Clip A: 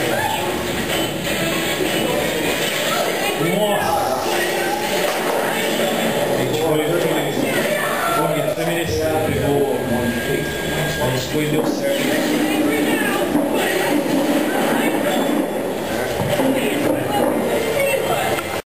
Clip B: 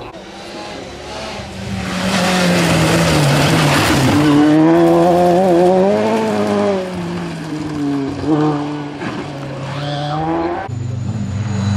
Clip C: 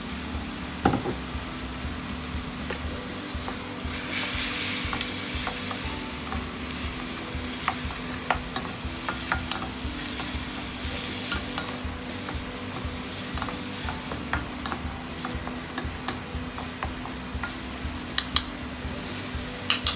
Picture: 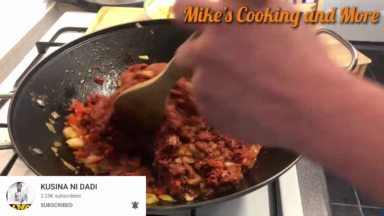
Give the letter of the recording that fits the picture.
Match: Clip C